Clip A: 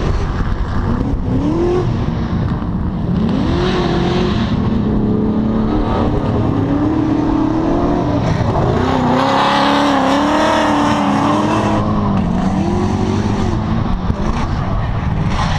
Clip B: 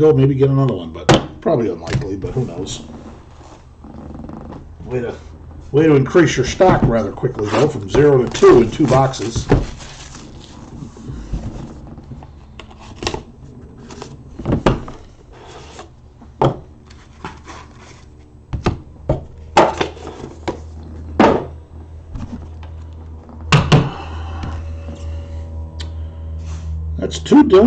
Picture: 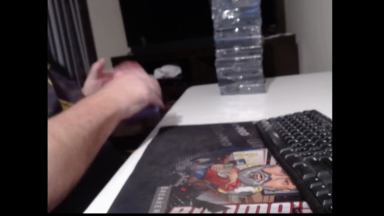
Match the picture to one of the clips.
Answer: B